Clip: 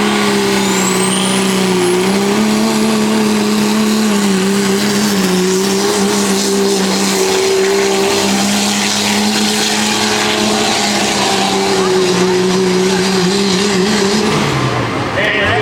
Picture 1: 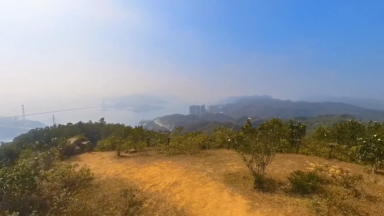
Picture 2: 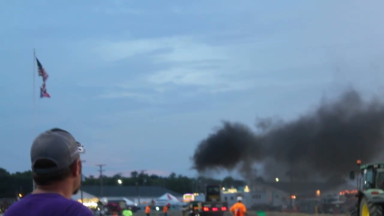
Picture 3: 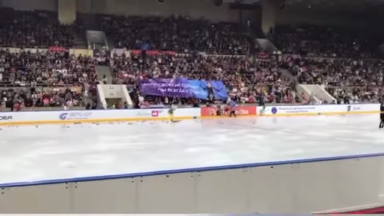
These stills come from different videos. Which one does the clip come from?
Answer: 2